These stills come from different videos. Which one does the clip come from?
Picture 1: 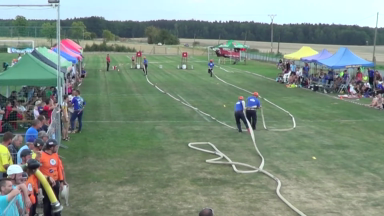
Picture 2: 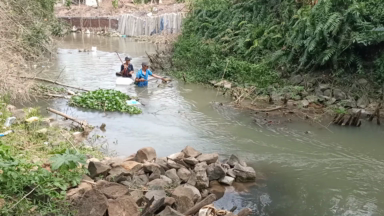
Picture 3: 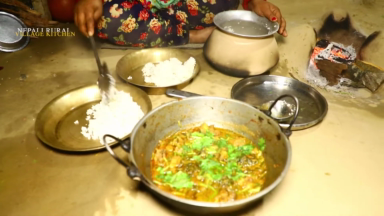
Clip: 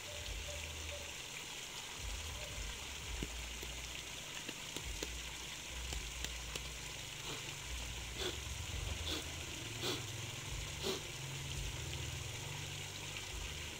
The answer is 2